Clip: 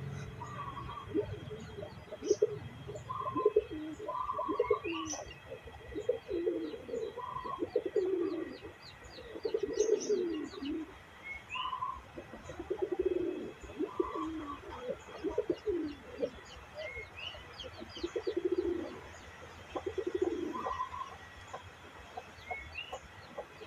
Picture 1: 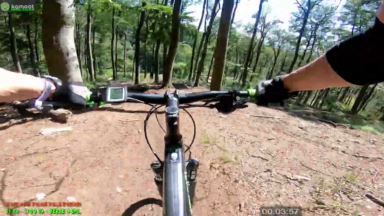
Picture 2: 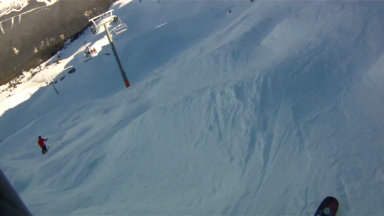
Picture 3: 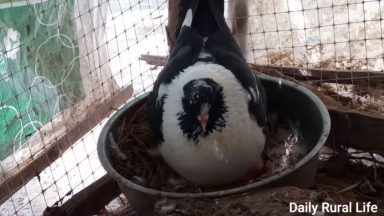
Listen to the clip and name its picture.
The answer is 3